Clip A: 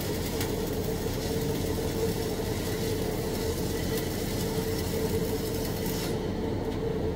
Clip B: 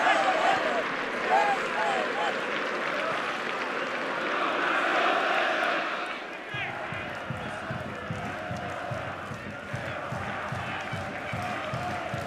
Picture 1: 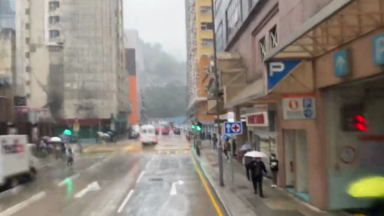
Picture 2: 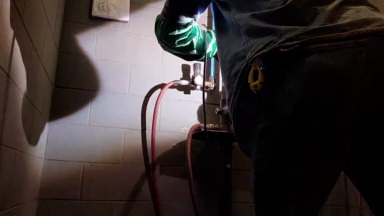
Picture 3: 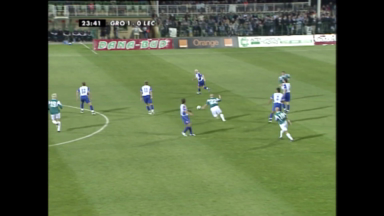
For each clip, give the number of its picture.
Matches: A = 2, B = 3